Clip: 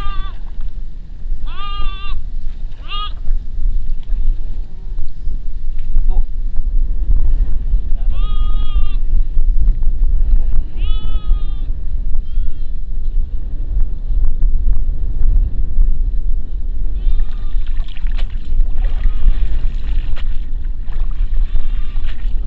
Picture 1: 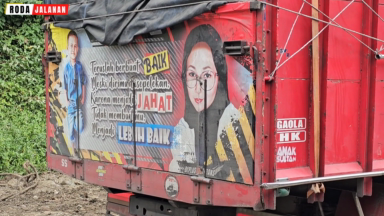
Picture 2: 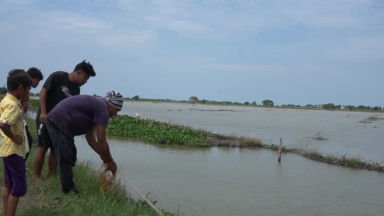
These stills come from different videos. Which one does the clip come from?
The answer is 2